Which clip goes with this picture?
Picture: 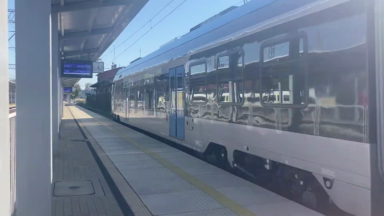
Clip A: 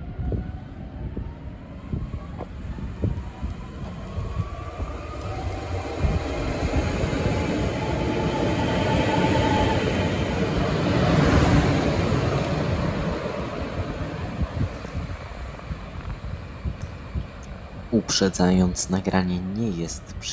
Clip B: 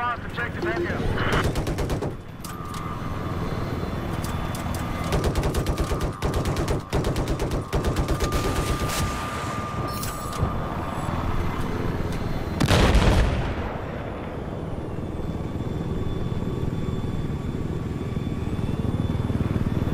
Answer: A